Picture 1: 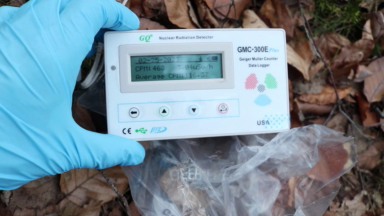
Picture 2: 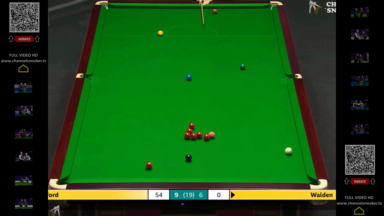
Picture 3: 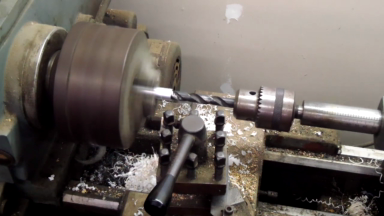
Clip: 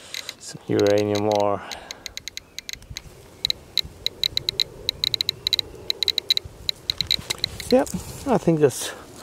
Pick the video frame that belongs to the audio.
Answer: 1